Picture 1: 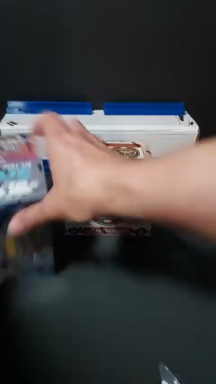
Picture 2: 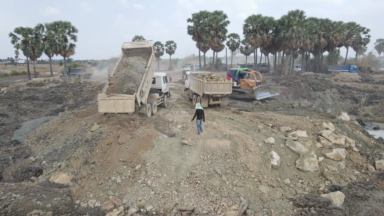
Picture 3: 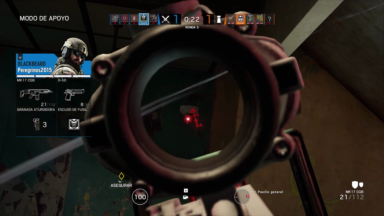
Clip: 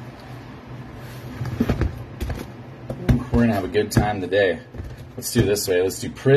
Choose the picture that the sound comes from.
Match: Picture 1